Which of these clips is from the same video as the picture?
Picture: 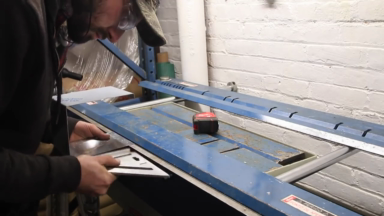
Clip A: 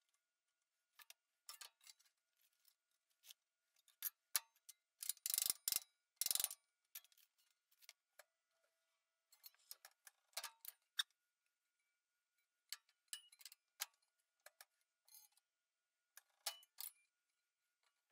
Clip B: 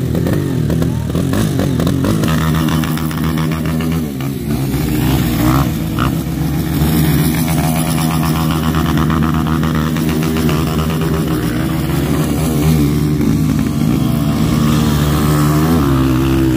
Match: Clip A